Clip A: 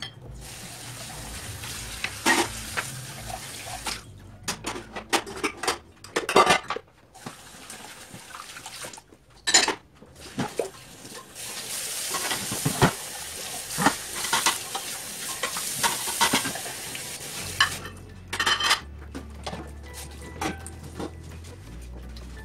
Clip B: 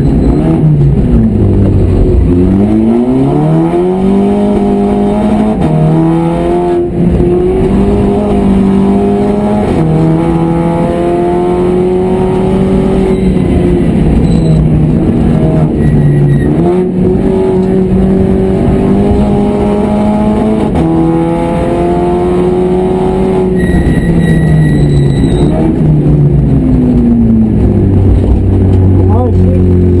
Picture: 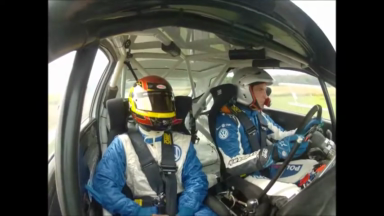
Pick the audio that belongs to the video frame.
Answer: B